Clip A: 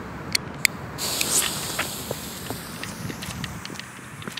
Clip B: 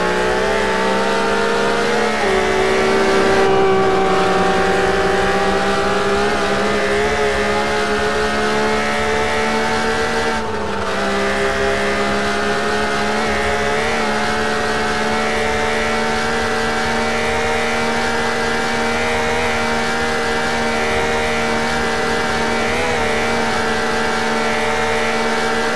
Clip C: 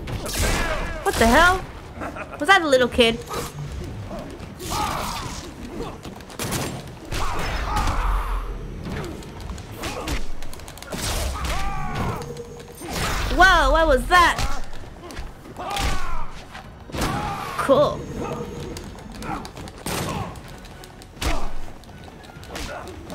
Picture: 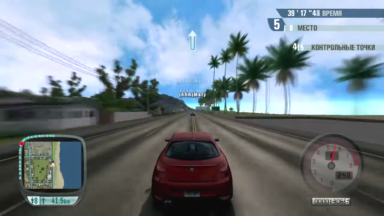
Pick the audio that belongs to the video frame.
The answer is B